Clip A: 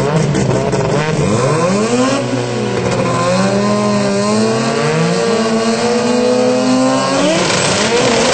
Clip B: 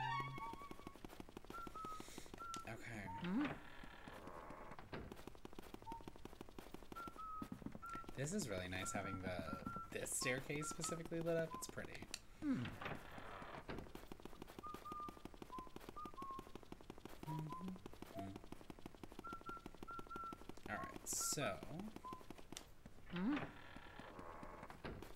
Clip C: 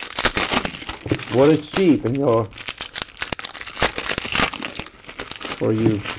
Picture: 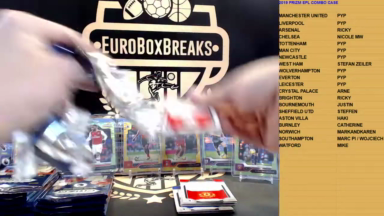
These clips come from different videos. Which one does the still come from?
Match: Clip C